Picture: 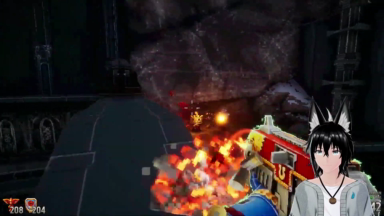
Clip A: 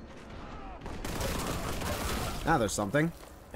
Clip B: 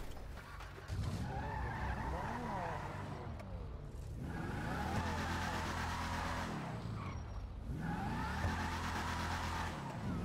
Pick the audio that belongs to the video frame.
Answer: A